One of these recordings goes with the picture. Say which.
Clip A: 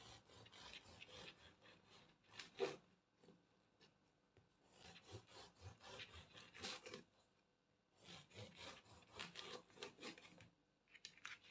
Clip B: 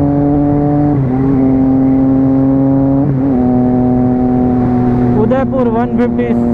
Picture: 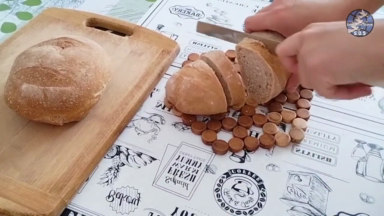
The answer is A